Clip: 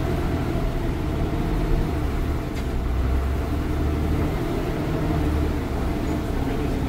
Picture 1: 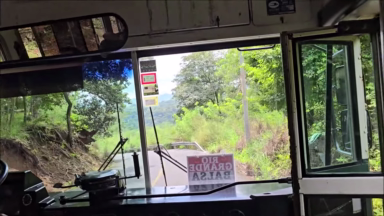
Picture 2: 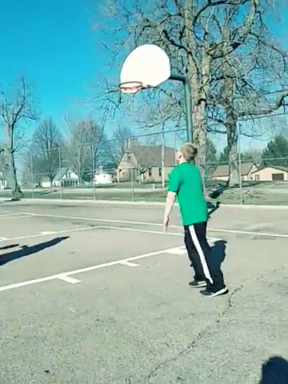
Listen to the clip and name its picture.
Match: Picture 1